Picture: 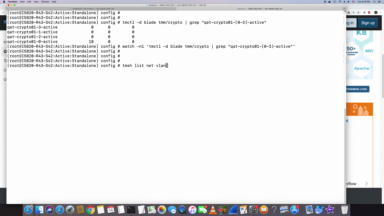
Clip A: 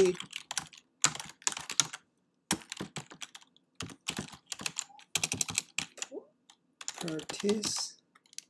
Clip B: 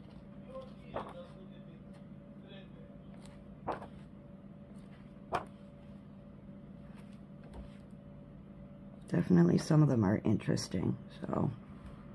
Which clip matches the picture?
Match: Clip A